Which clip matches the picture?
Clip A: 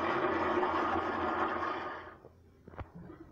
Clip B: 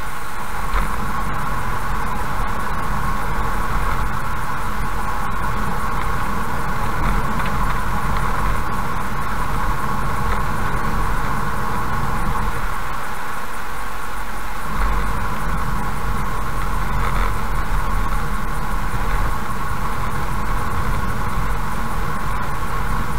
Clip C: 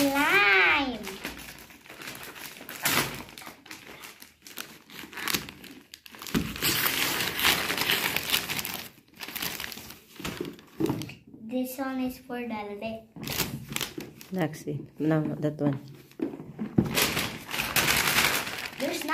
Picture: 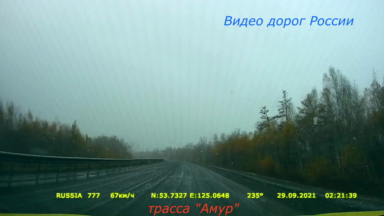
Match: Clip B